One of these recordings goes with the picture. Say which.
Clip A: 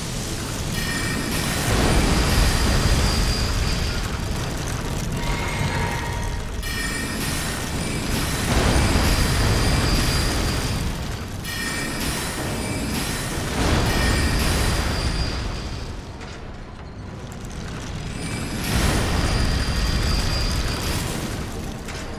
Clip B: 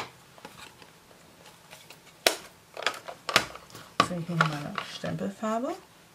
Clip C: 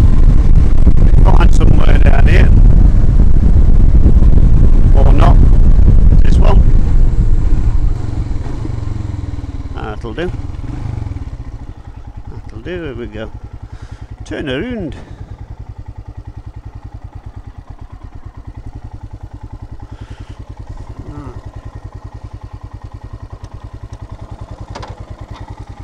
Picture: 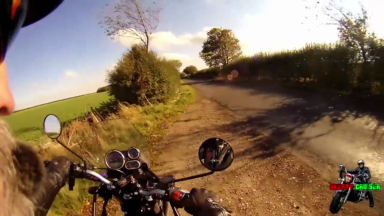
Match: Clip C